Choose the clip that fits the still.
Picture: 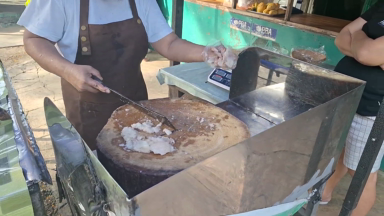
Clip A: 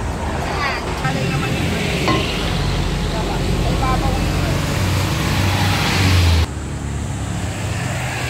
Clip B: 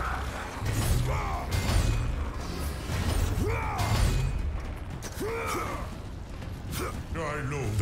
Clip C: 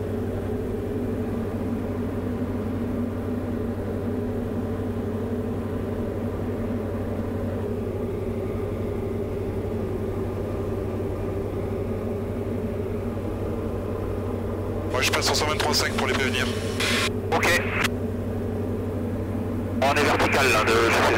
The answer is A